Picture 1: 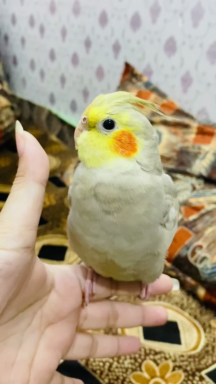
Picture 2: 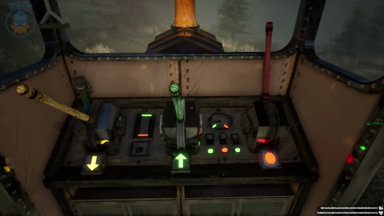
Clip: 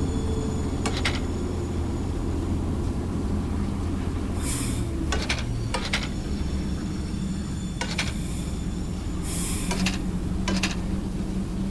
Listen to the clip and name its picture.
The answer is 2